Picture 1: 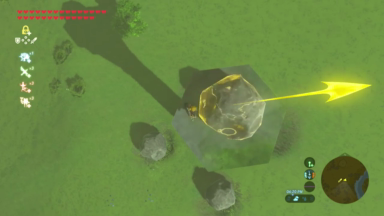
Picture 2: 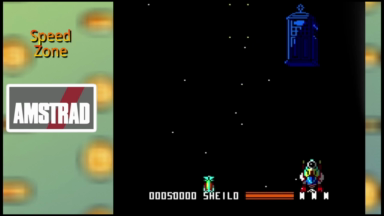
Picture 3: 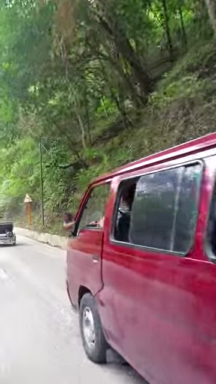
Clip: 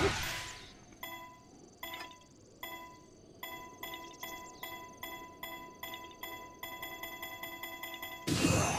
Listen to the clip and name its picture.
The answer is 1